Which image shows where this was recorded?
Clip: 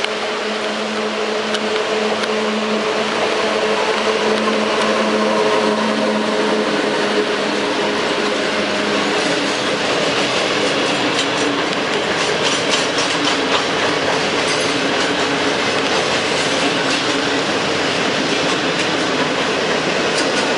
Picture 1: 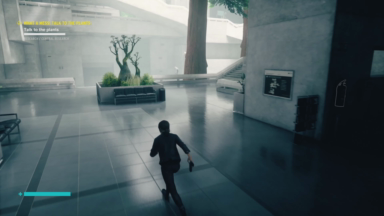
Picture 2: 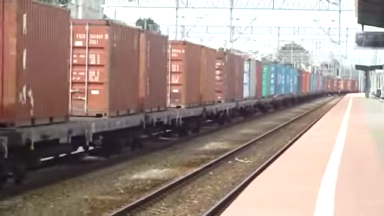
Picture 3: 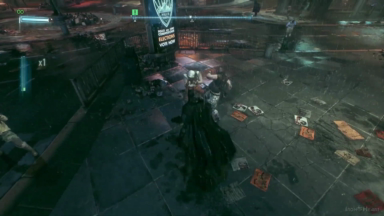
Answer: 2